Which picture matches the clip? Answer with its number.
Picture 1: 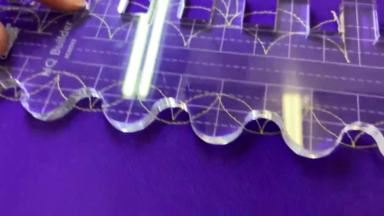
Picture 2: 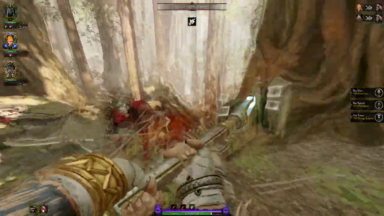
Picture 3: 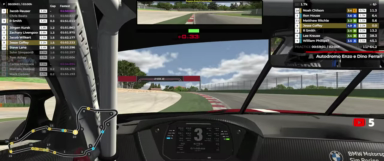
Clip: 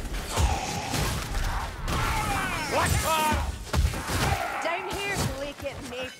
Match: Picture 2